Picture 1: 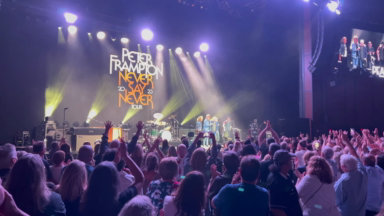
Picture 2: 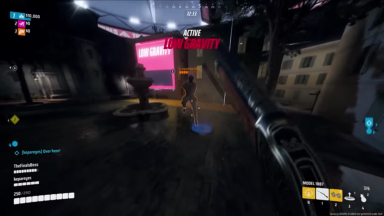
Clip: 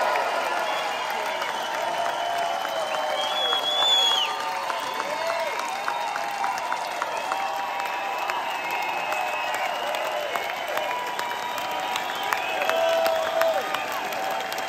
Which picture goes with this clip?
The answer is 1